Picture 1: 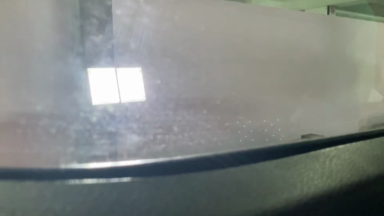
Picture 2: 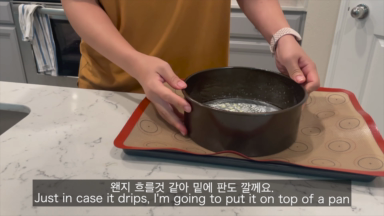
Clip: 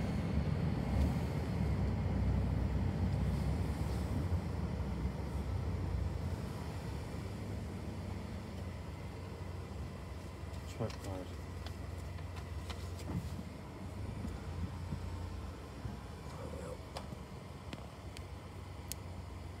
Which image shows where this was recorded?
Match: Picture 1